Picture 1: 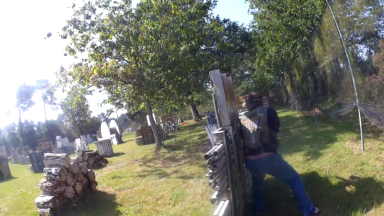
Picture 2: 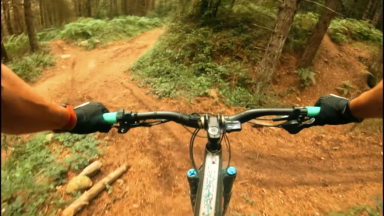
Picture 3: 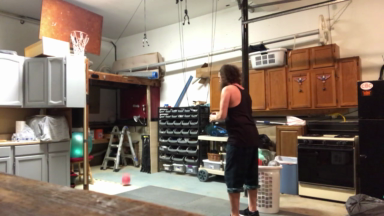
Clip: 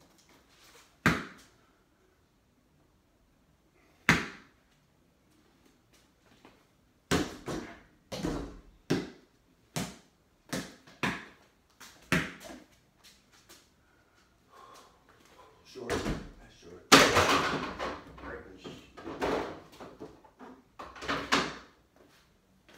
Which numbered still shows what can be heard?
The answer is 3